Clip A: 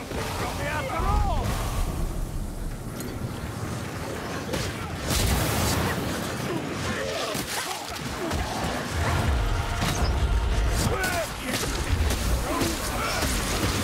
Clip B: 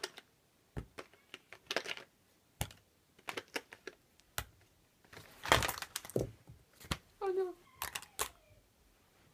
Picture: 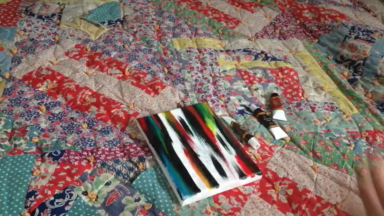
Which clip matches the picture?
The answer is B